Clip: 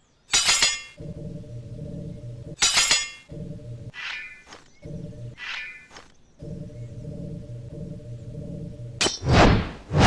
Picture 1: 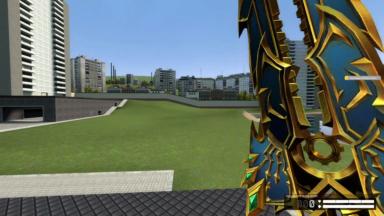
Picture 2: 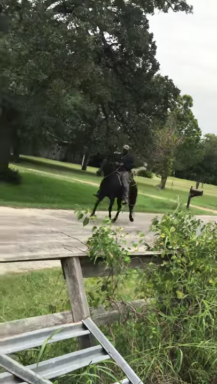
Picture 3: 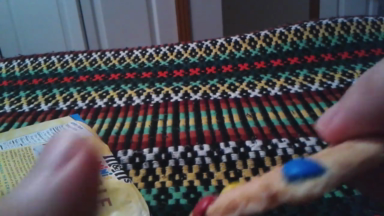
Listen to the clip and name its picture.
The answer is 1